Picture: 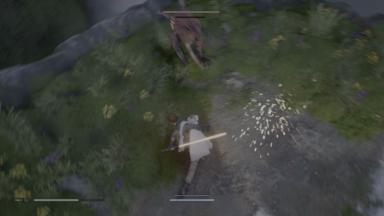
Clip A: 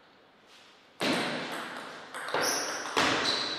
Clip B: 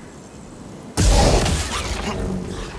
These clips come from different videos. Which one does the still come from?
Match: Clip B